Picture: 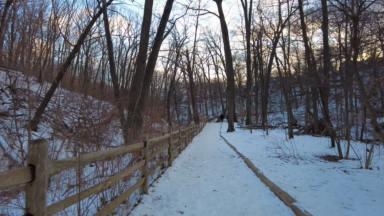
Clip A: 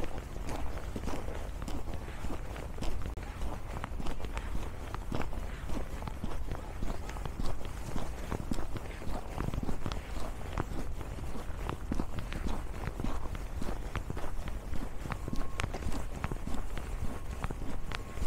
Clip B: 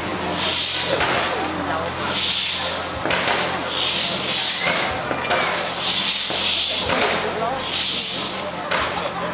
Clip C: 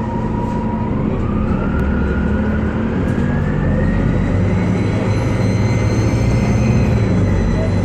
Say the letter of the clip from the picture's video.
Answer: A